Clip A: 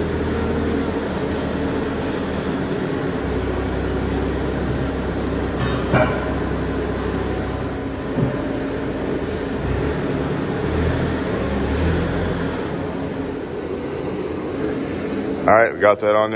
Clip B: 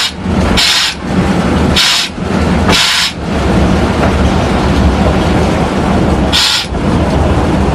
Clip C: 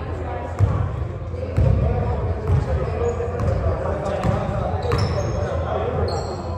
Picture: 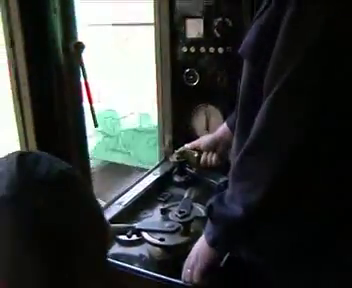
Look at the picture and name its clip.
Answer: B